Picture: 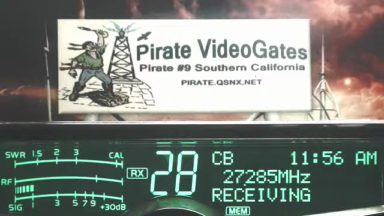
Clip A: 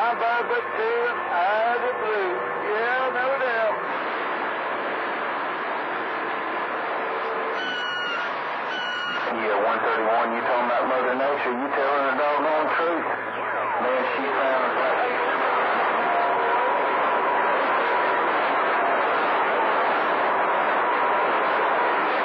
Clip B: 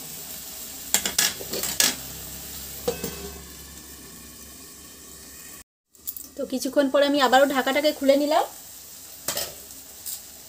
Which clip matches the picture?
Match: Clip A